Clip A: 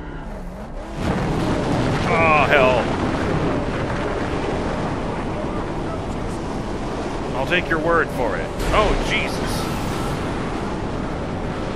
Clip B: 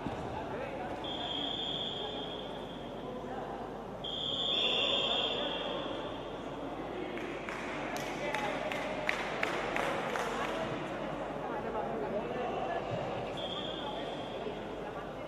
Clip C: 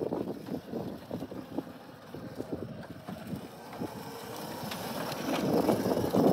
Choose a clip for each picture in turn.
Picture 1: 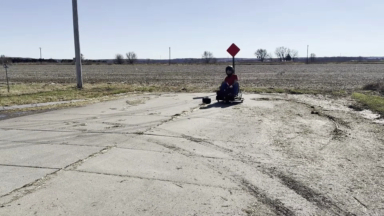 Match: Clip C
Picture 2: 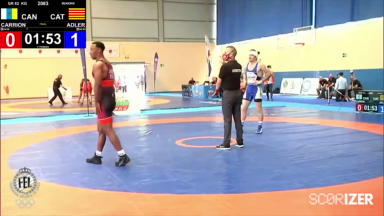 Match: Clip B